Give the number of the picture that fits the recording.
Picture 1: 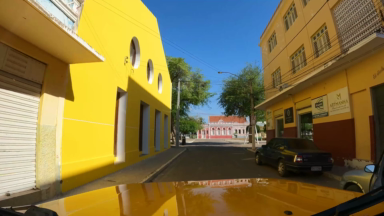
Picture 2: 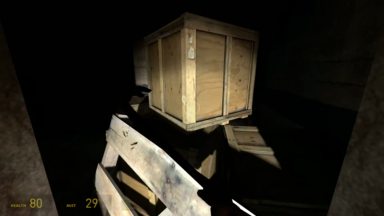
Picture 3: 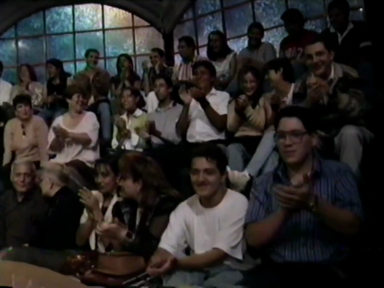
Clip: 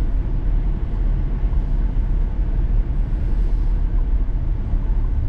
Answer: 1